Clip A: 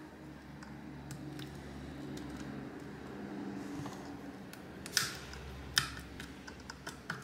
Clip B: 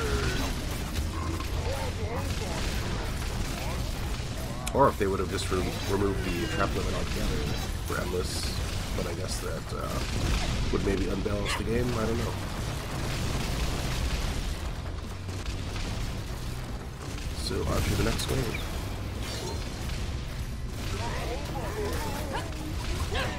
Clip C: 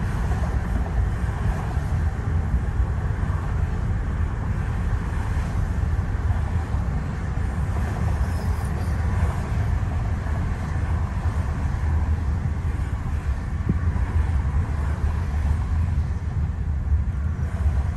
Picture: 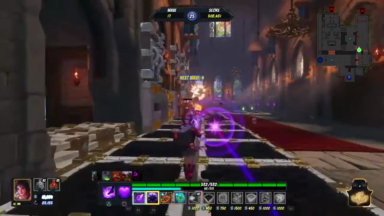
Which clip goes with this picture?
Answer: B